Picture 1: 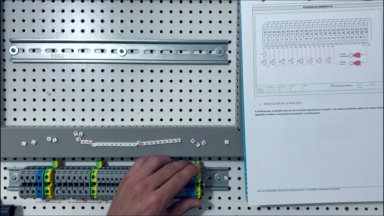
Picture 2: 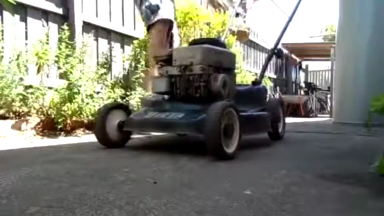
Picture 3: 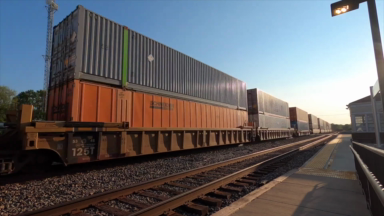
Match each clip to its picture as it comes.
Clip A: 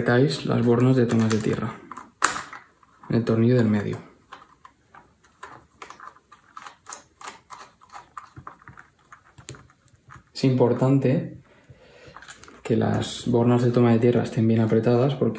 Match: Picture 1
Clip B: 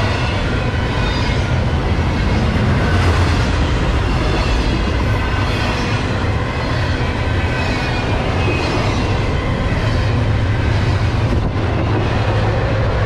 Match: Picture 3